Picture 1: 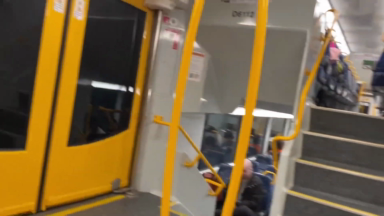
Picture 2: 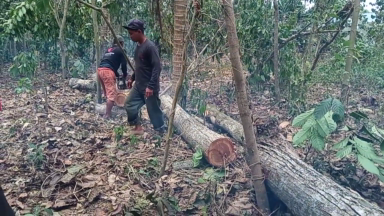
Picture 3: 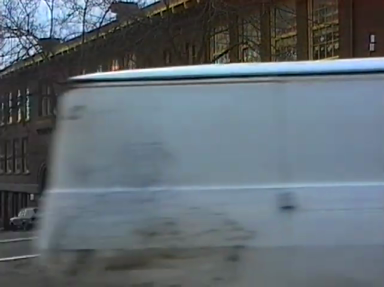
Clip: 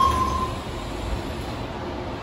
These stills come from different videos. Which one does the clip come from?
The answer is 1